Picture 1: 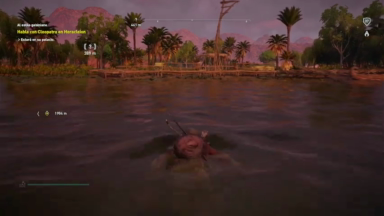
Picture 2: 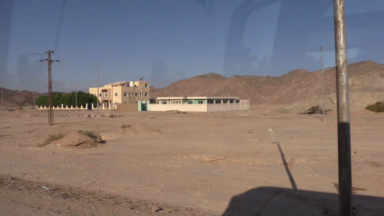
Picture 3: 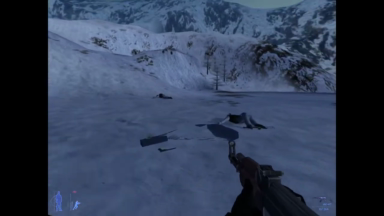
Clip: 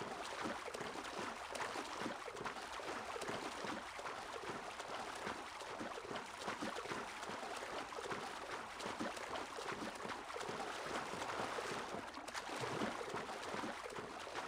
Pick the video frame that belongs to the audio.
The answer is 1